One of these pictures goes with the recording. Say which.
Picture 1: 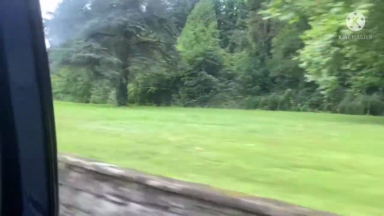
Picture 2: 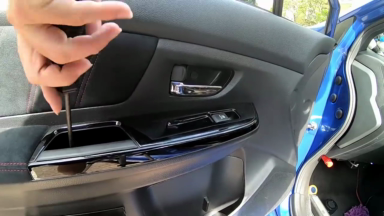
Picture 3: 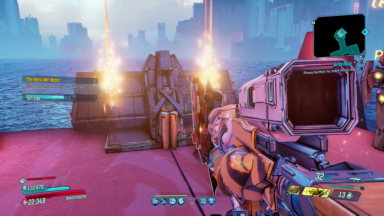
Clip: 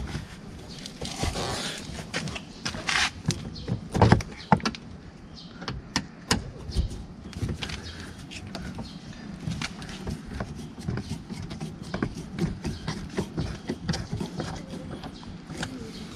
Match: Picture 2